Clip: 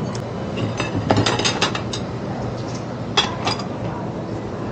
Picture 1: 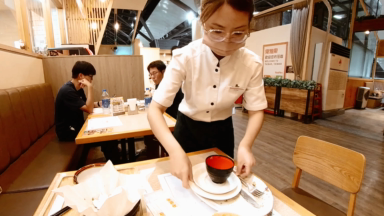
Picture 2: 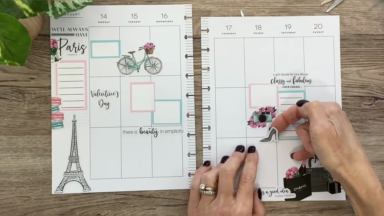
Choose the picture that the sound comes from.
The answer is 1